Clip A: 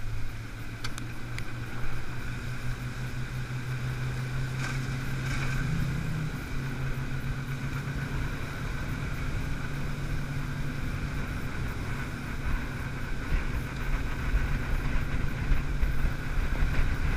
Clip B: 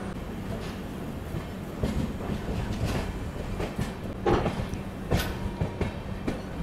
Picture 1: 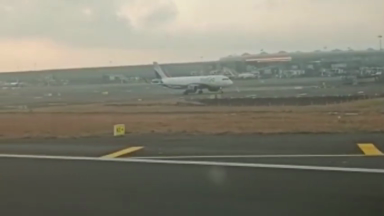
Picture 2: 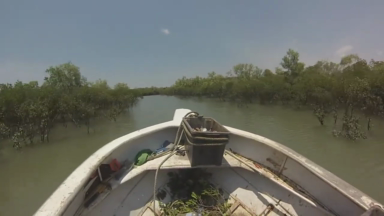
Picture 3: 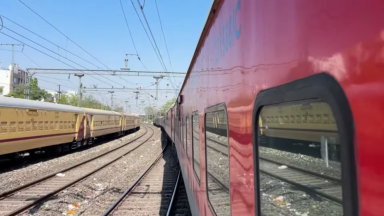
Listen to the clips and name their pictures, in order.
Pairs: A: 2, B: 3